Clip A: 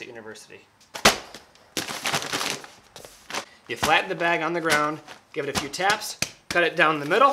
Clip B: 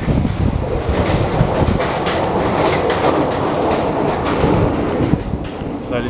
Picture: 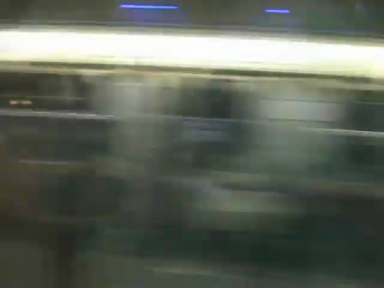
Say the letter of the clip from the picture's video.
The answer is B